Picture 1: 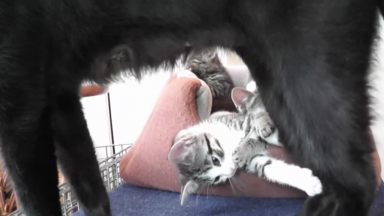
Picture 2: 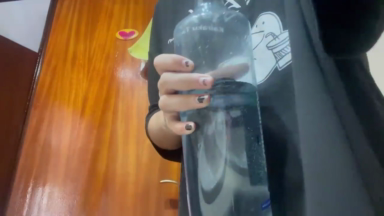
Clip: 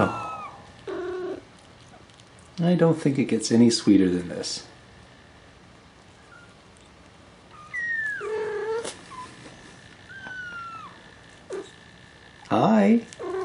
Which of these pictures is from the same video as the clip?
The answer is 1